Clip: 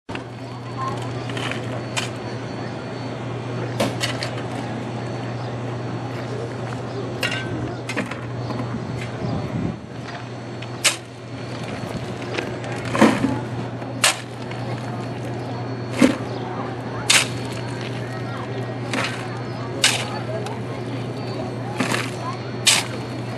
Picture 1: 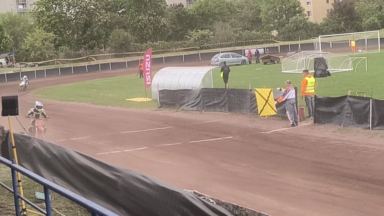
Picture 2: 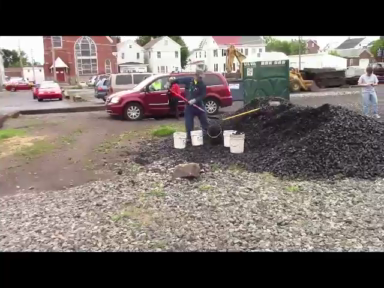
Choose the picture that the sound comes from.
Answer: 2